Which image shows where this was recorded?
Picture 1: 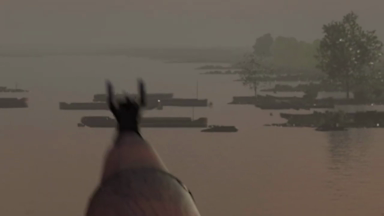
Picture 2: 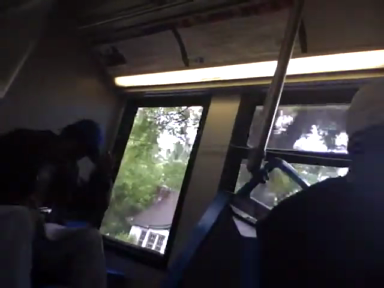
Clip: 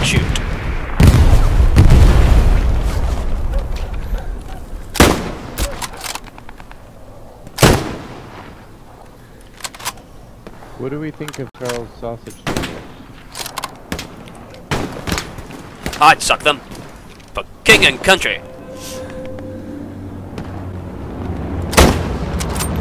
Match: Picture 1